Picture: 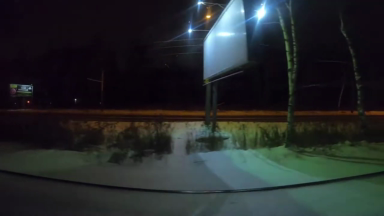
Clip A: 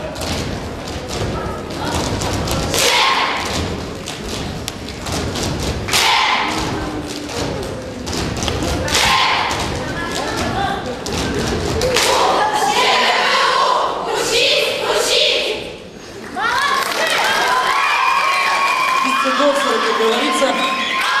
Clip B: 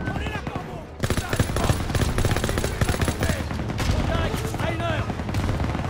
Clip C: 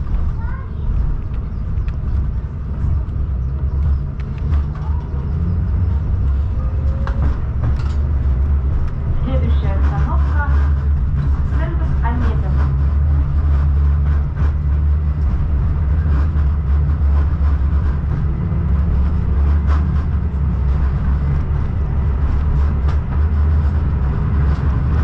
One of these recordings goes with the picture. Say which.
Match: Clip C